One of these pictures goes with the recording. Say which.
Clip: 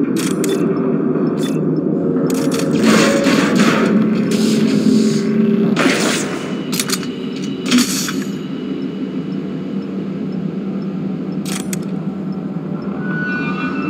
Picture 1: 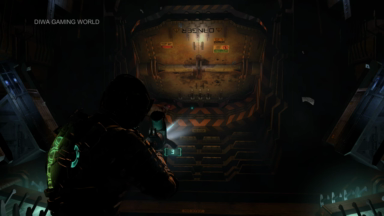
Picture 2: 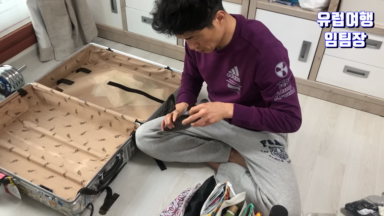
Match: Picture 1